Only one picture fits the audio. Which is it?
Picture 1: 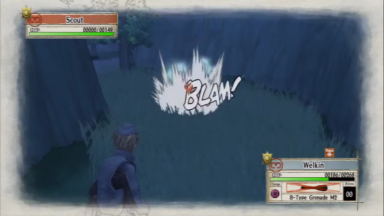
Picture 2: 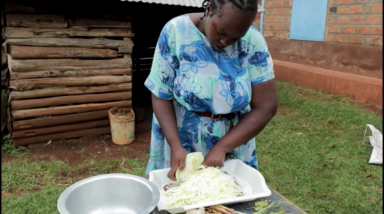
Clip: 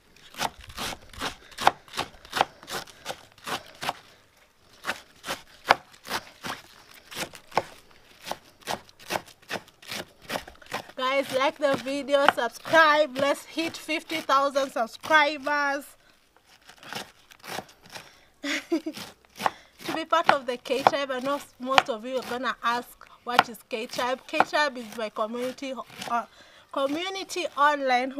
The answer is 2